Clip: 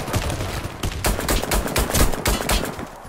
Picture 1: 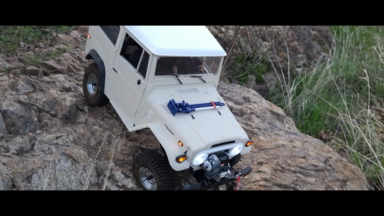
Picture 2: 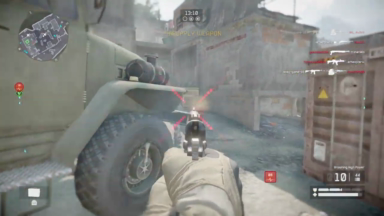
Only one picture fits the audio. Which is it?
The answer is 2